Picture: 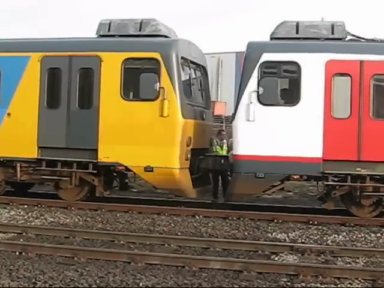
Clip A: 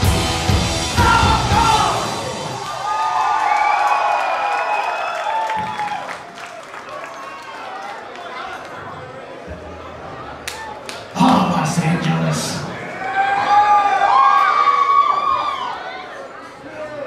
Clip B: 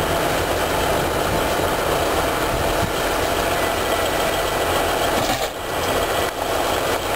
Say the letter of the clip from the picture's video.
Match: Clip B